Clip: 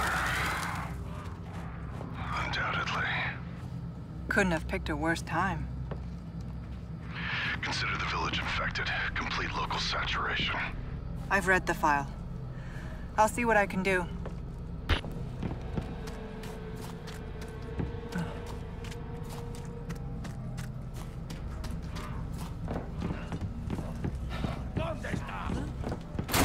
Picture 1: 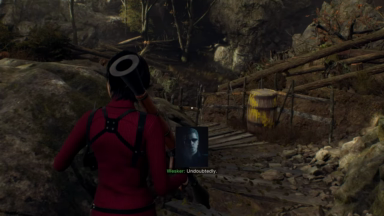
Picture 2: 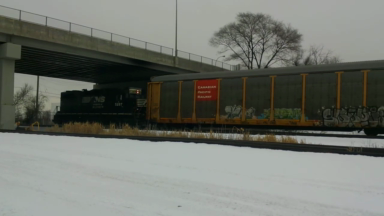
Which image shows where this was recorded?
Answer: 1